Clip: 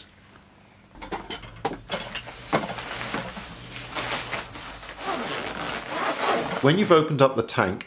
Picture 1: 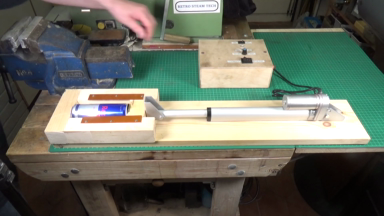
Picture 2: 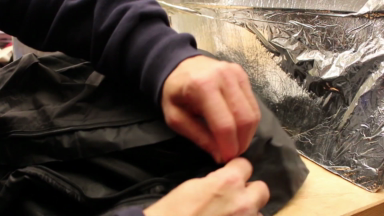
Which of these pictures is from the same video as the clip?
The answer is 2